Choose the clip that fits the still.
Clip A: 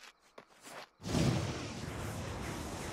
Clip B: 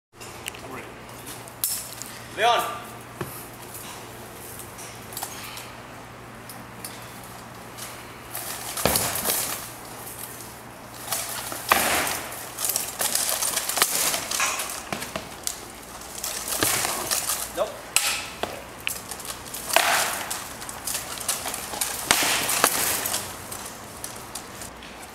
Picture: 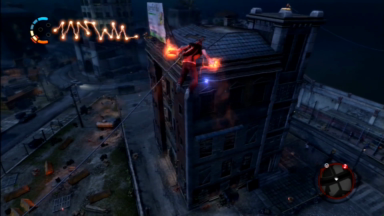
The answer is A